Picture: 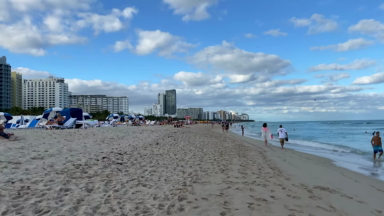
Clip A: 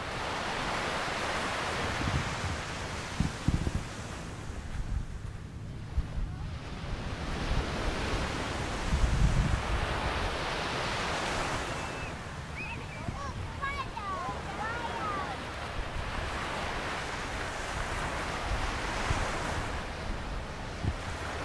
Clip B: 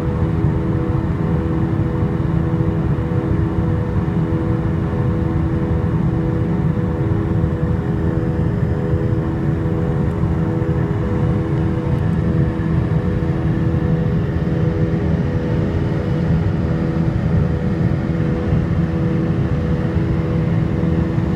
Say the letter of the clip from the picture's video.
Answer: A